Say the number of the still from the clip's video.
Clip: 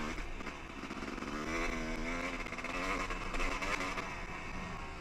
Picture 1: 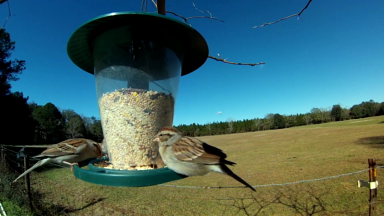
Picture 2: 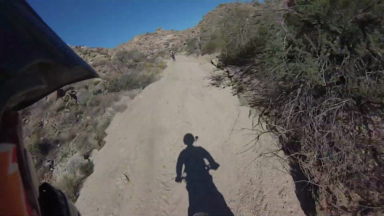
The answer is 2